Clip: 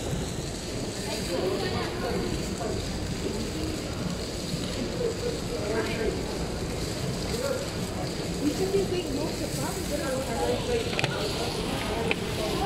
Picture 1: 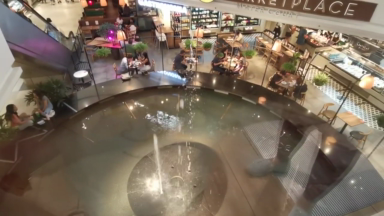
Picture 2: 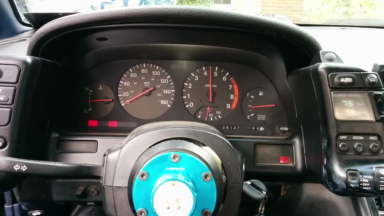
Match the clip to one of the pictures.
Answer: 1